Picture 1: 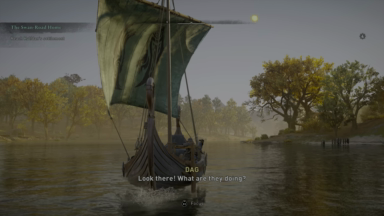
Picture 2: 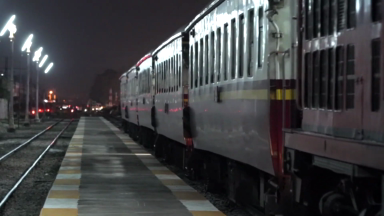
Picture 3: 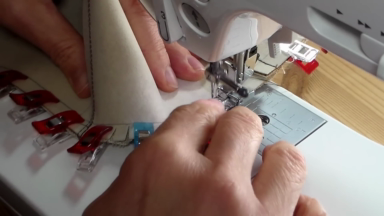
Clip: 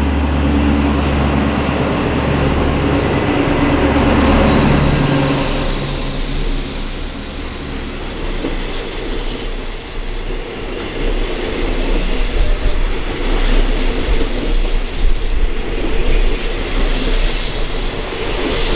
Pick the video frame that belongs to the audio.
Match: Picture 2